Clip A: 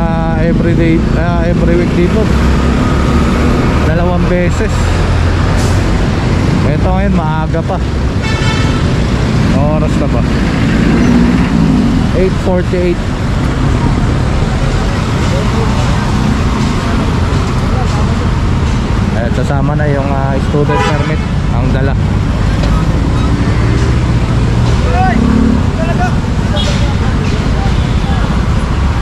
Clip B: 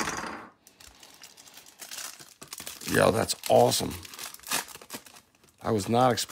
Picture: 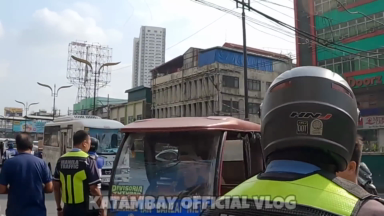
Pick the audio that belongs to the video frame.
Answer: A